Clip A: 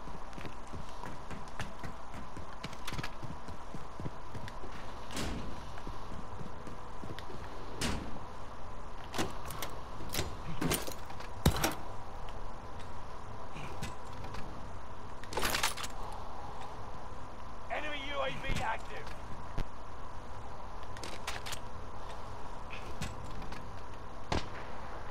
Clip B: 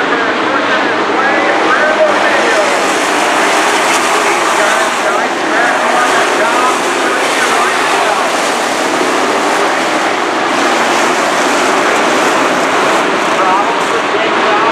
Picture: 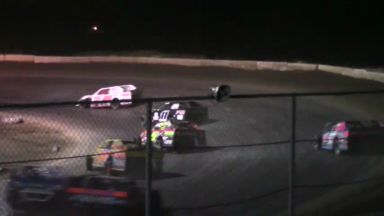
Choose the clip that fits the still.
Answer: B